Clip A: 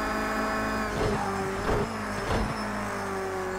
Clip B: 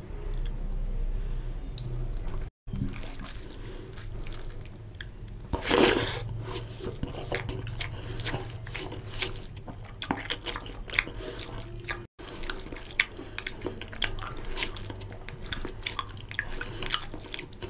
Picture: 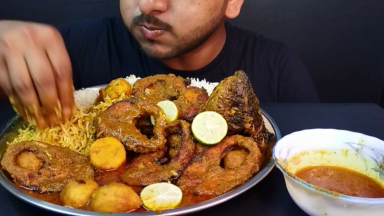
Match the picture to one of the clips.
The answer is B